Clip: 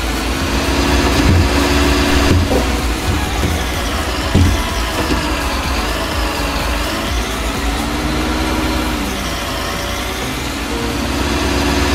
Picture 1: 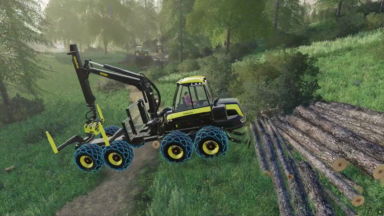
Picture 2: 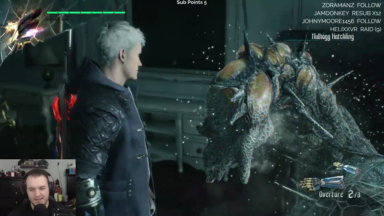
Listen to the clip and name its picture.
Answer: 1